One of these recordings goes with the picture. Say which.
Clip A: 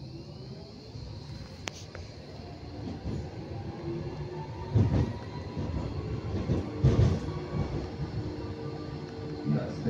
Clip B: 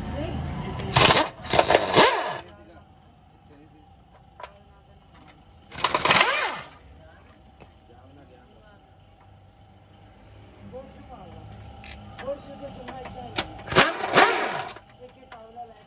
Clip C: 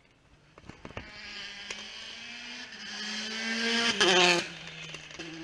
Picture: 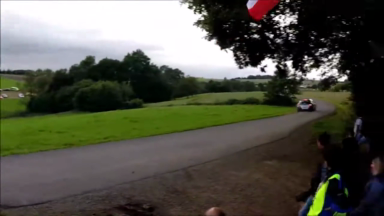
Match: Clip C